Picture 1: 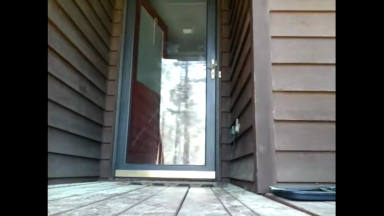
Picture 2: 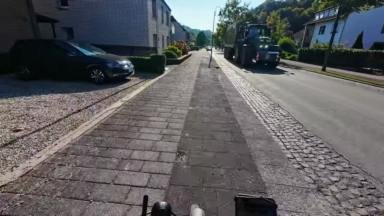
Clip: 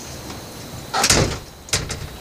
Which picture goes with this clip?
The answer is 1